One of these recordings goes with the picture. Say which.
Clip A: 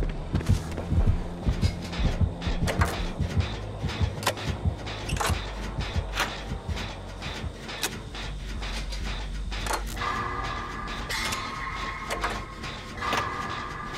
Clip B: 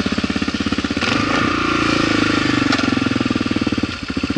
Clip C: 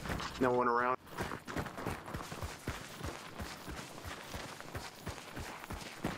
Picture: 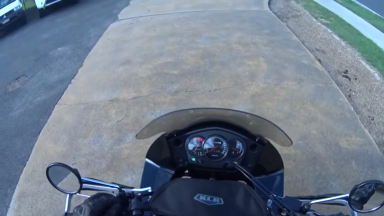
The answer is B